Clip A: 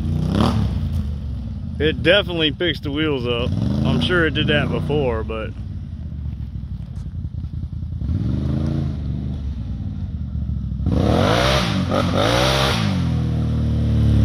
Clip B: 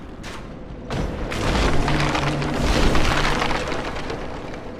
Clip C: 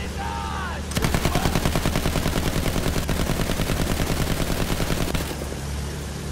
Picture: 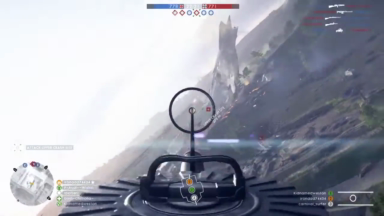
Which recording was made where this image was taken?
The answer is C